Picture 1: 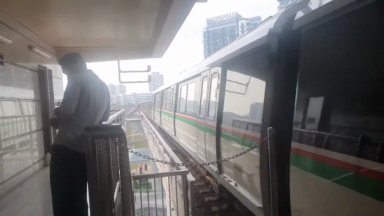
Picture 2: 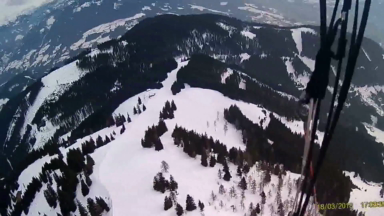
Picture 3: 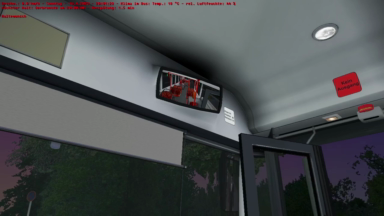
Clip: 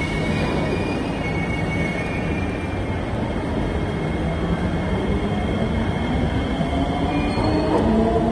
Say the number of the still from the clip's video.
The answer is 1